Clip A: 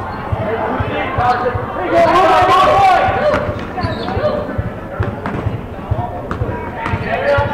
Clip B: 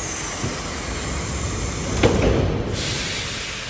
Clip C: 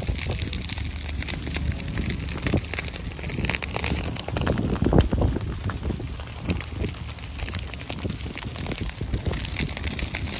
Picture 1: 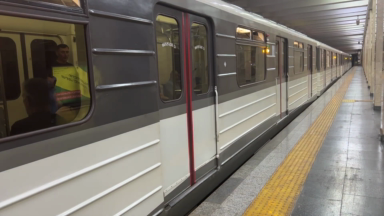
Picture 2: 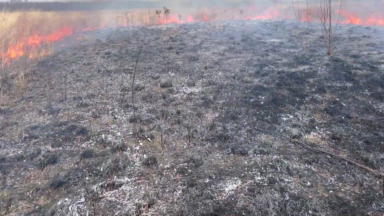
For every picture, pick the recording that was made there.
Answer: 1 B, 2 C